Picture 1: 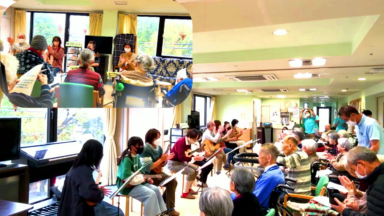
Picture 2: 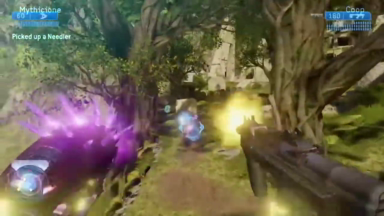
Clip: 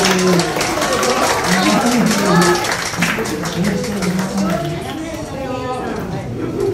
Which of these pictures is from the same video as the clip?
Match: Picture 1